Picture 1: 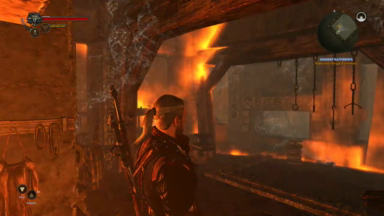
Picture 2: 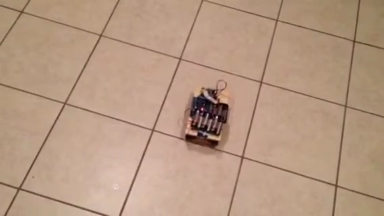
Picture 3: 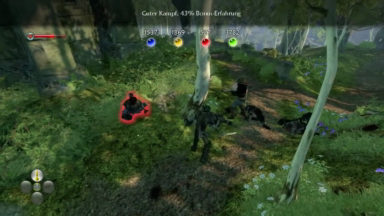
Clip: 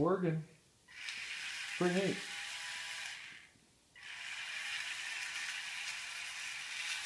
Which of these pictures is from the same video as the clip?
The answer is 2